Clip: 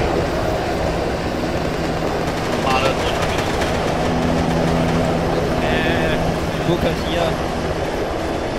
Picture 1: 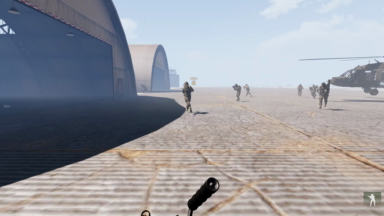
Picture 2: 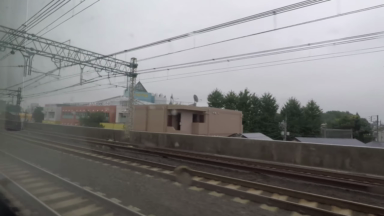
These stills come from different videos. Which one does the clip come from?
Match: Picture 1